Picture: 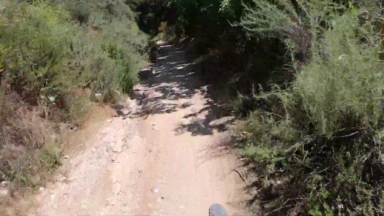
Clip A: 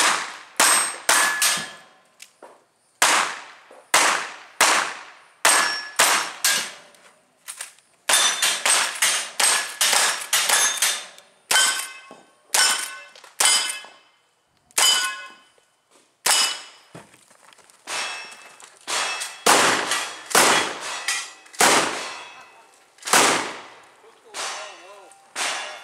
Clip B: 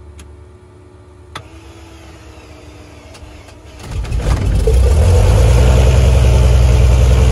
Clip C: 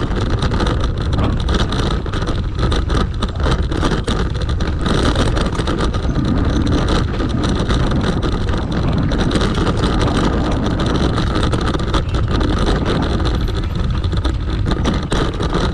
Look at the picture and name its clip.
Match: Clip C